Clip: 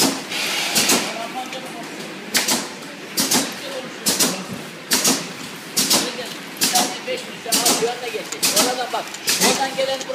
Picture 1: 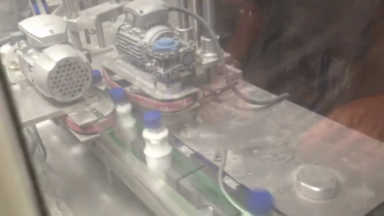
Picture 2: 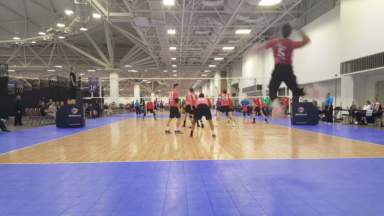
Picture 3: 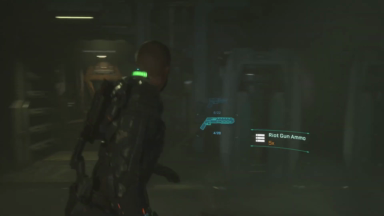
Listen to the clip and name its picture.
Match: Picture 1